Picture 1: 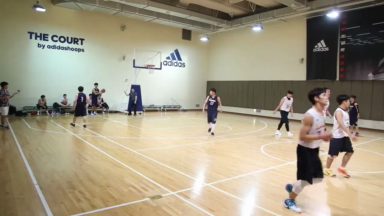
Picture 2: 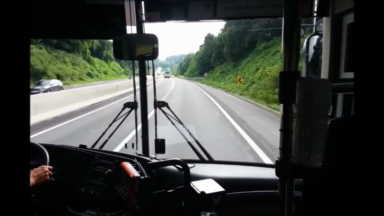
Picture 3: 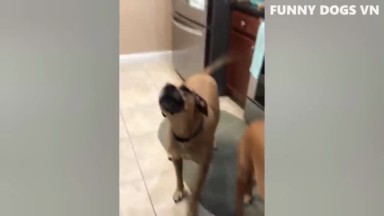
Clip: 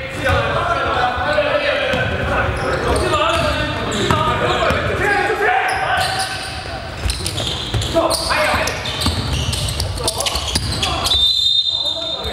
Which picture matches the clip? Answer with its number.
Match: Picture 1